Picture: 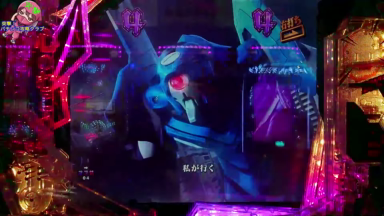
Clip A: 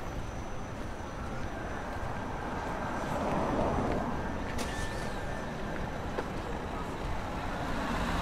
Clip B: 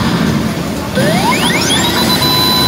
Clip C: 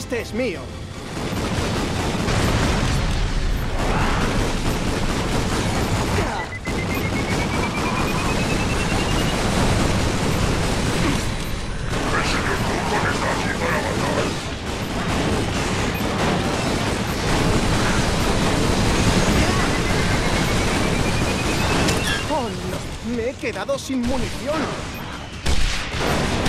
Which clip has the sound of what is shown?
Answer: B